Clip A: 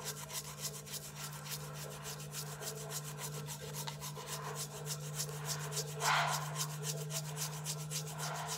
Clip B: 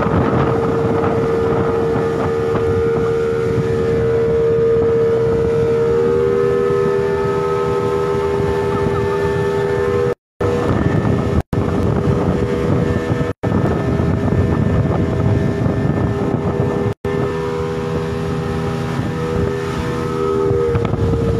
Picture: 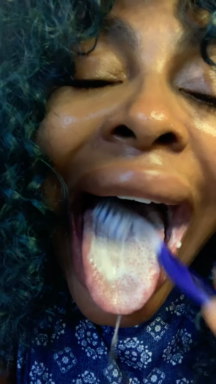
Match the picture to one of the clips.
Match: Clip A